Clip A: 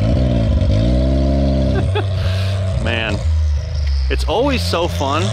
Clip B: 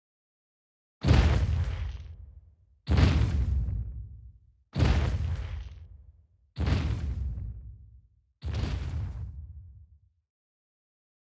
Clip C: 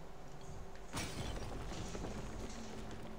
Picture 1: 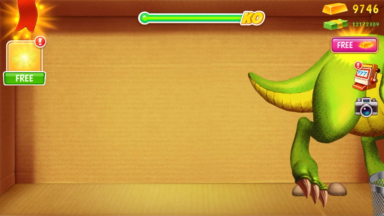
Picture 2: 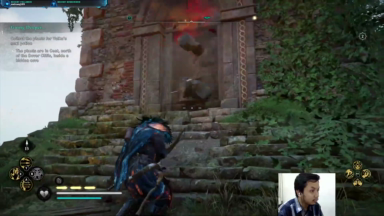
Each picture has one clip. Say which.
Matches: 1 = B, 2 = C